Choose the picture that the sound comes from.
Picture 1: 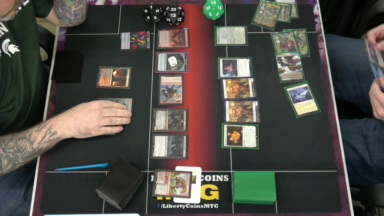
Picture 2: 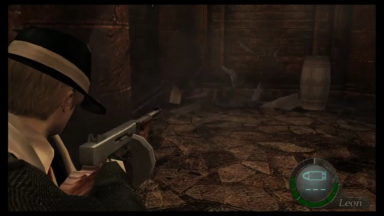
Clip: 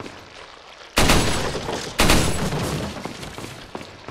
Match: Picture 2